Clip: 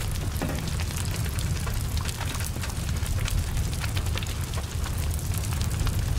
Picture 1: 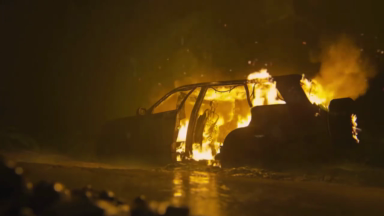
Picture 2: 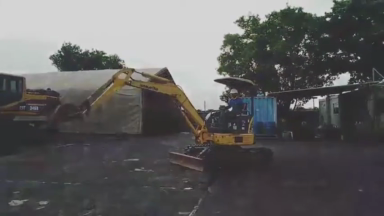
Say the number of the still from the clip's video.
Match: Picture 1